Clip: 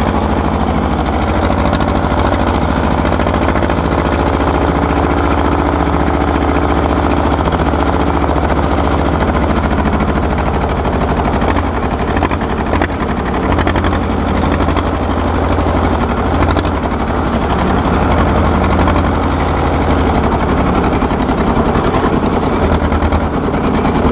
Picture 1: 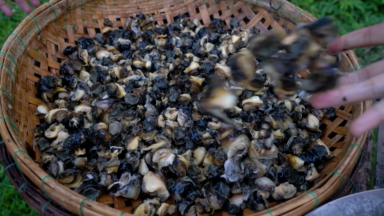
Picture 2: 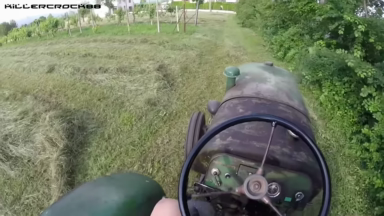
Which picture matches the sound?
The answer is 2